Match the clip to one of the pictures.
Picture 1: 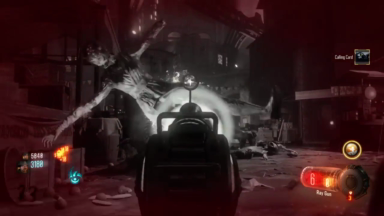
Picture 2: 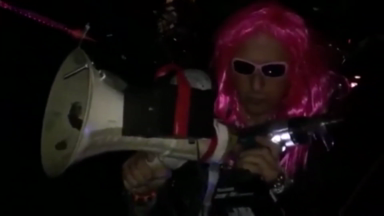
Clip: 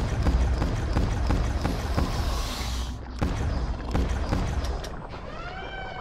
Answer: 1